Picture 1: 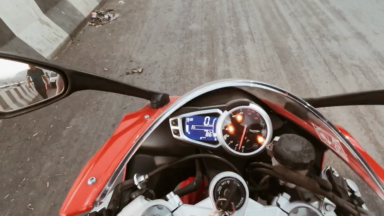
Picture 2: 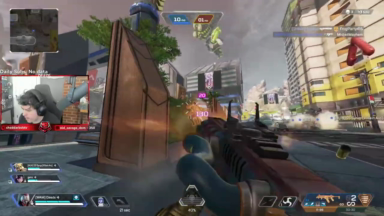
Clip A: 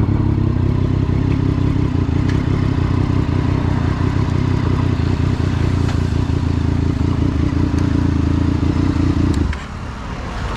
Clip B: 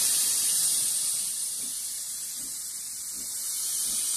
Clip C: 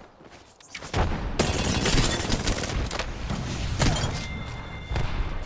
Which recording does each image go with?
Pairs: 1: A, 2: C